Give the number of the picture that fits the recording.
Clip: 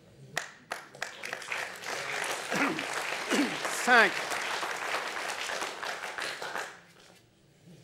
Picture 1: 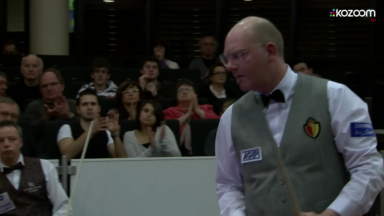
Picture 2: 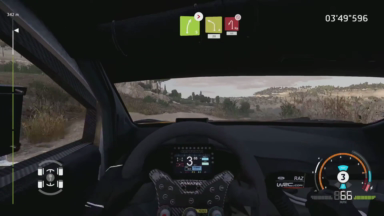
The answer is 1